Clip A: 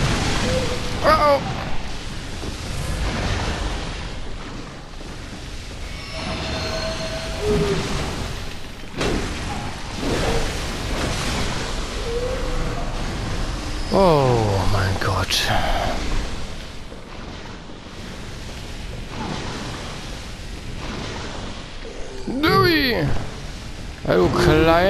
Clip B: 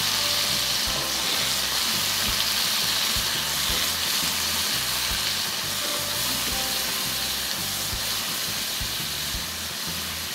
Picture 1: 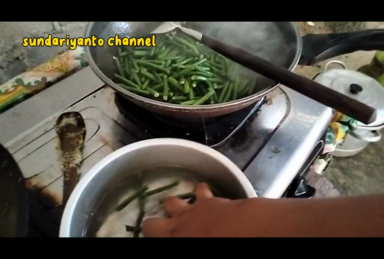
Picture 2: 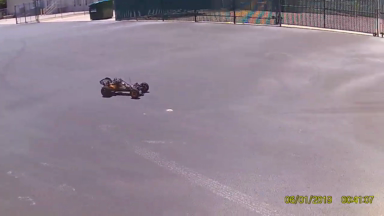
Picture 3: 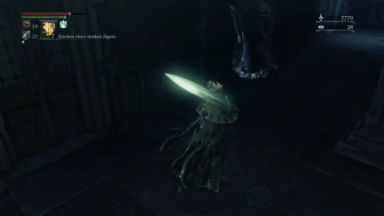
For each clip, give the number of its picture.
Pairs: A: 3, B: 1